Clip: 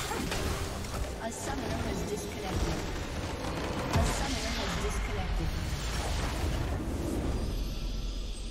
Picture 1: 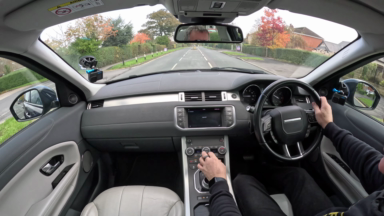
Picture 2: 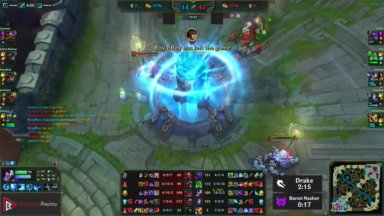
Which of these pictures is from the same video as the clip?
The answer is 2